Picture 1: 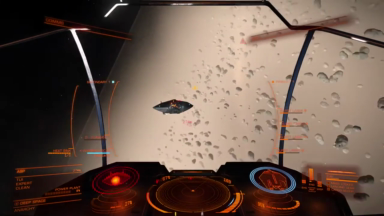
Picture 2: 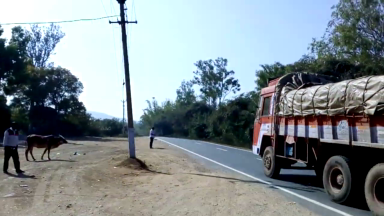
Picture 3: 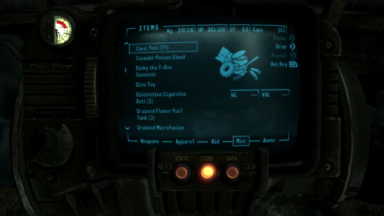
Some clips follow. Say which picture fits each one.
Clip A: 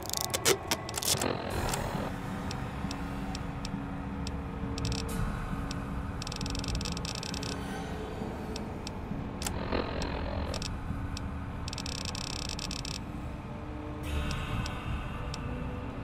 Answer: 3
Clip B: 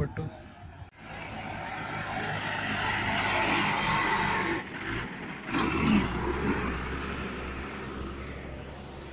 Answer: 2